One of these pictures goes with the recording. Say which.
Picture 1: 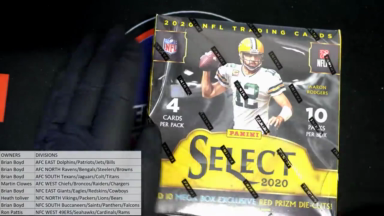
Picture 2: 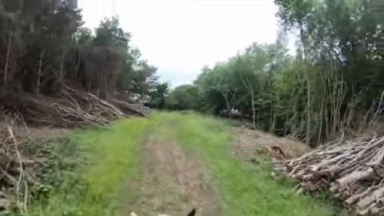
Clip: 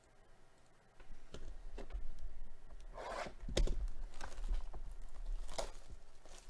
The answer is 1